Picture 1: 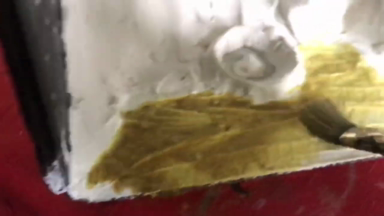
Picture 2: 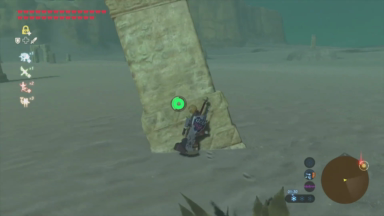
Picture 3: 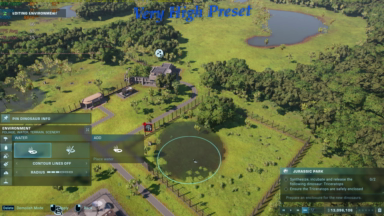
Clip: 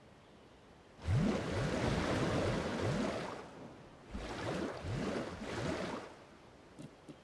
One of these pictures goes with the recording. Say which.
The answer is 3